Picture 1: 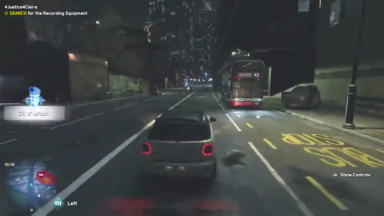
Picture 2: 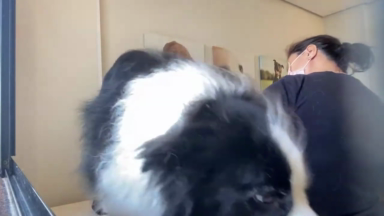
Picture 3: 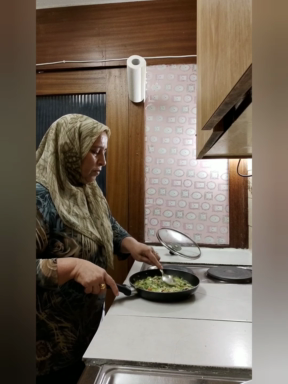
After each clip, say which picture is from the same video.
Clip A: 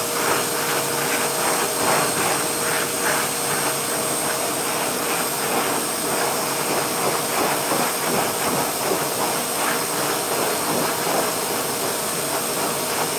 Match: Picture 2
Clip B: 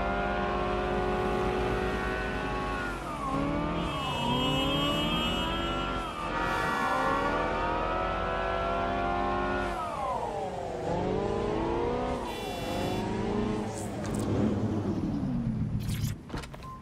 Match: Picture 1